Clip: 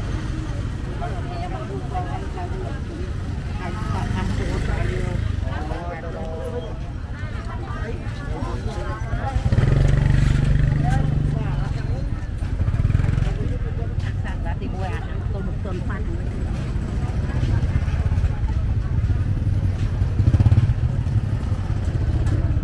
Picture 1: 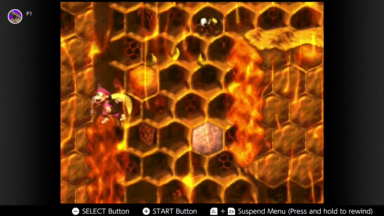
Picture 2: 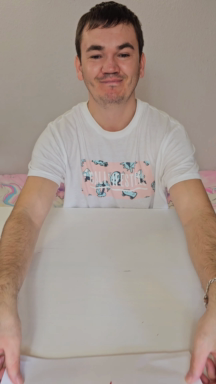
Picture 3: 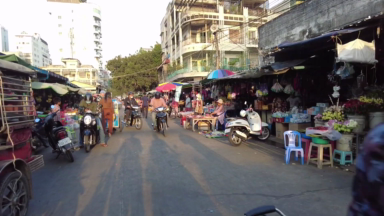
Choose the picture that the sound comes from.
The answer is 3